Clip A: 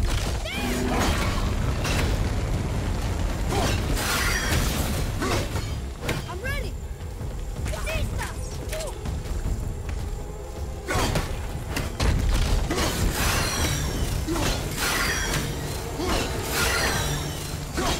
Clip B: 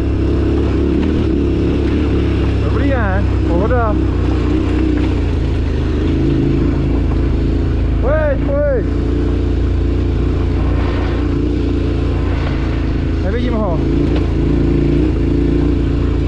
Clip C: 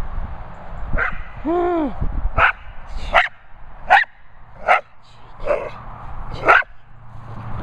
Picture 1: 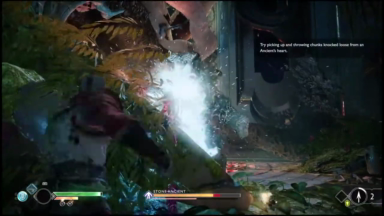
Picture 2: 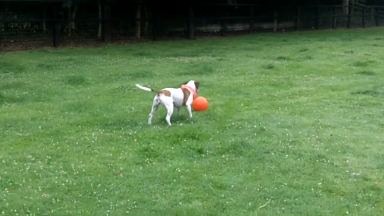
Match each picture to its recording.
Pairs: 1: A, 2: C